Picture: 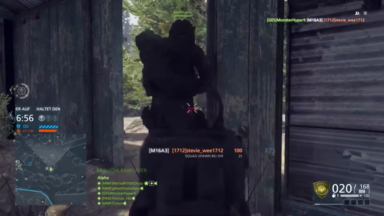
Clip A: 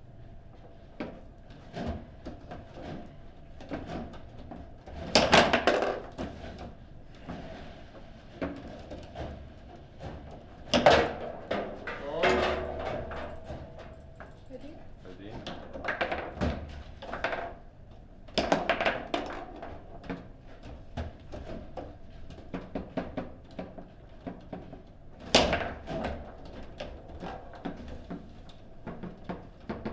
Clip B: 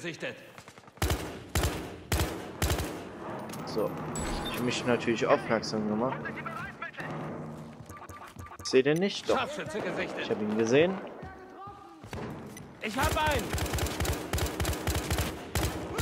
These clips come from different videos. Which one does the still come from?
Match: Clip B